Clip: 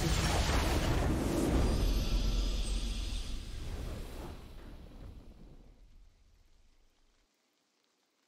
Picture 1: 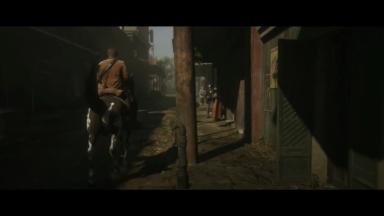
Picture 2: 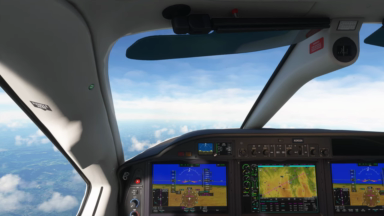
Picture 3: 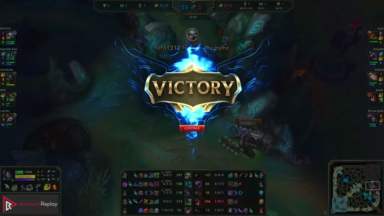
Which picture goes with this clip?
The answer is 3